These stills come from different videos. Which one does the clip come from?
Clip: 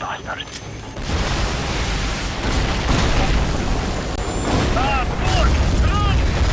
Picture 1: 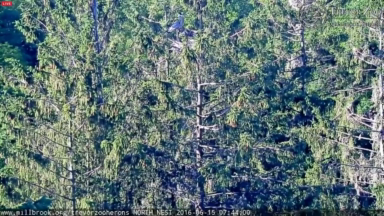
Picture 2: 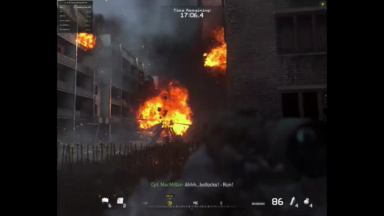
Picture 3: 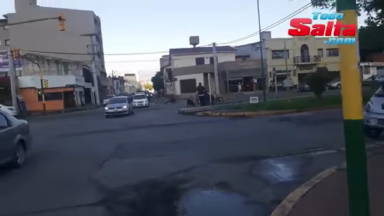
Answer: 2